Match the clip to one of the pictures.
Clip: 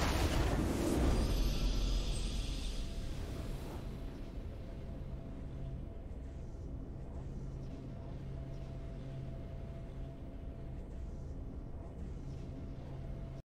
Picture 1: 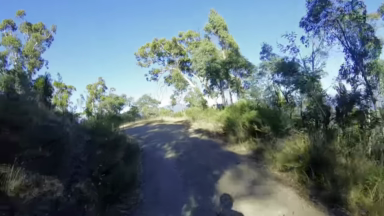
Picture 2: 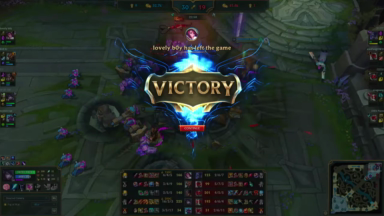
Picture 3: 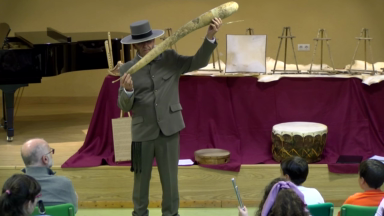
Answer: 2